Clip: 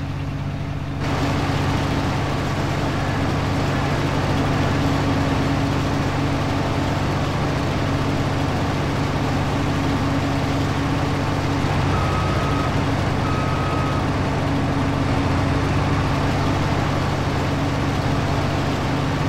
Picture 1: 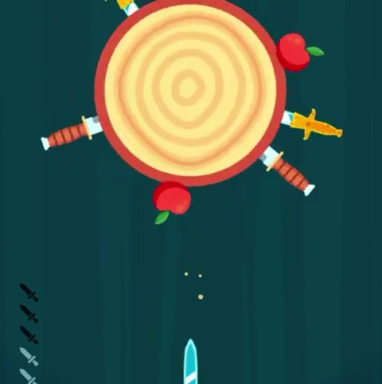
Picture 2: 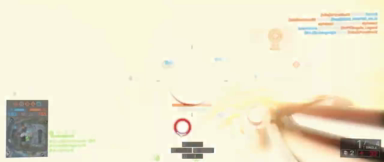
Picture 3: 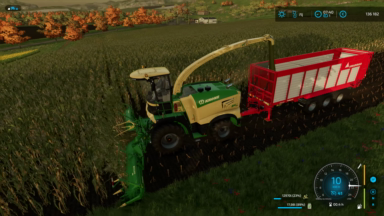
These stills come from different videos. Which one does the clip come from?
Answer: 3